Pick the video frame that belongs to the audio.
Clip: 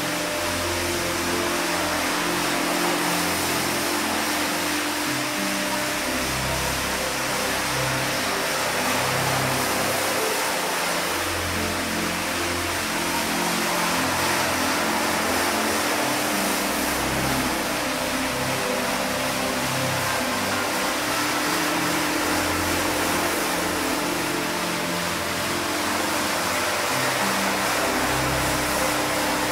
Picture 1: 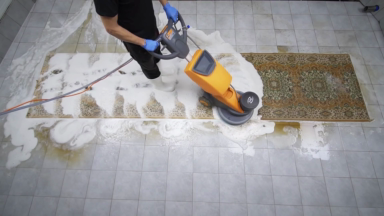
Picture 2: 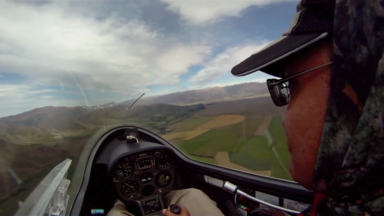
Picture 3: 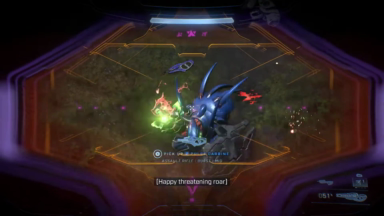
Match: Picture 1